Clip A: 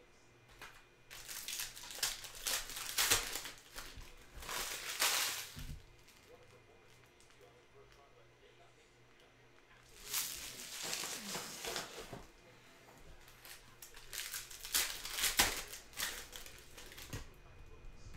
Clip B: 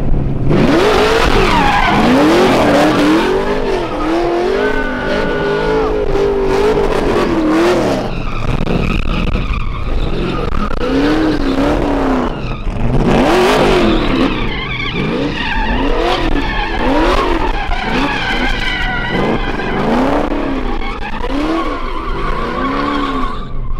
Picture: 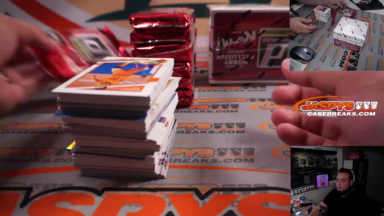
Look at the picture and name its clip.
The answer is A